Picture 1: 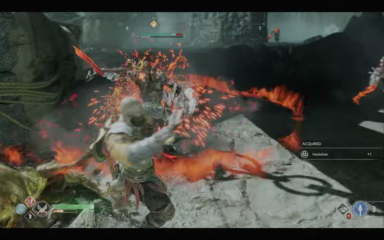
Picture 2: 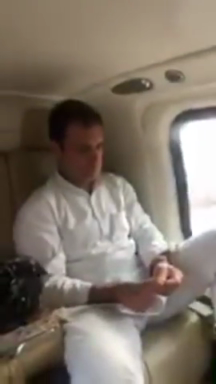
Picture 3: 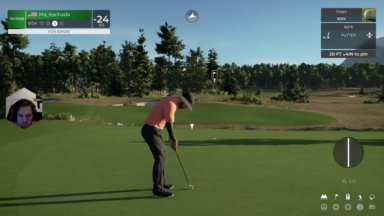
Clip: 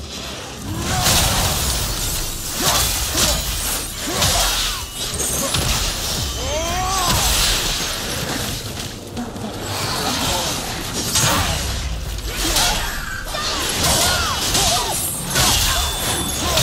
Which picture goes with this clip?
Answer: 1